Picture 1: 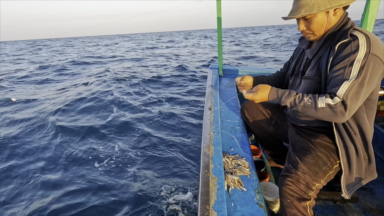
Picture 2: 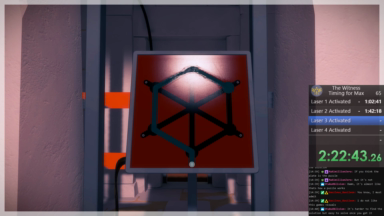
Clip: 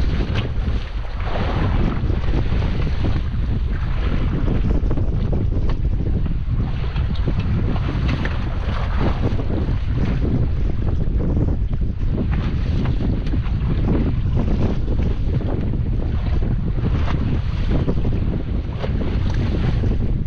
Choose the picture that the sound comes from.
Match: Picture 1